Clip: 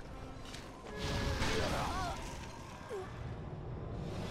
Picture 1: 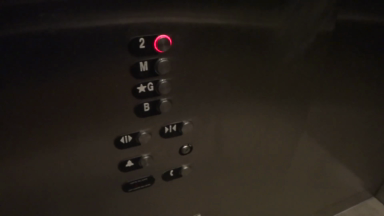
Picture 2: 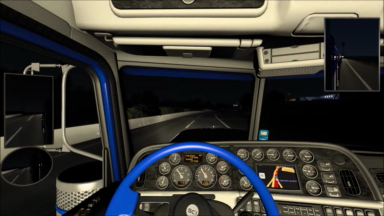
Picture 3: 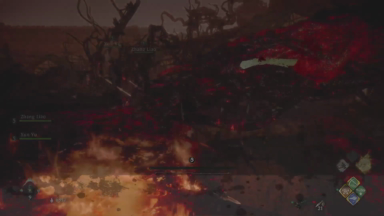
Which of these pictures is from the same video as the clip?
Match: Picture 3